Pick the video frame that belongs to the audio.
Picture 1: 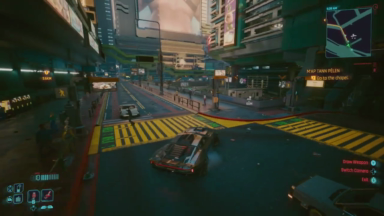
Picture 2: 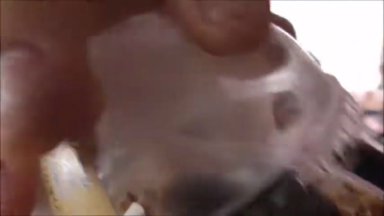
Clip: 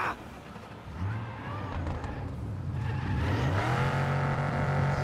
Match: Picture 1